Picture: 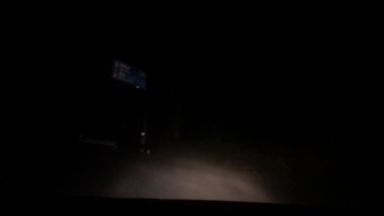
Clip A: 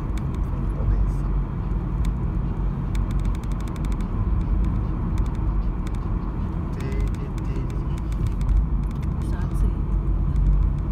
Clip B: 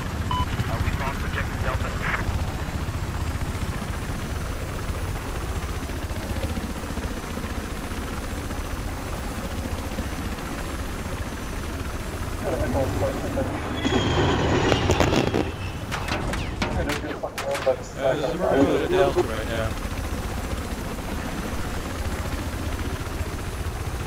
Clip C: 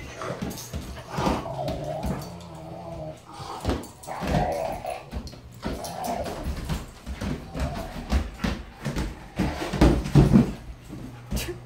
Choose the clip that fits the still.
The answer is A